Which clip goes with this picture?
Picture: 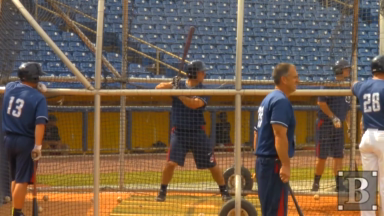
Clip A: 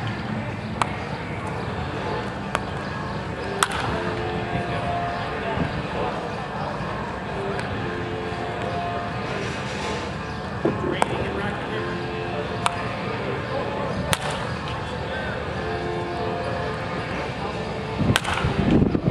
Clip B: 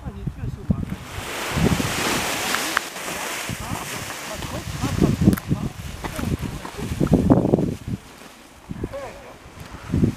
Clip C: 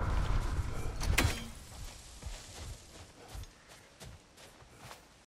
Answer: A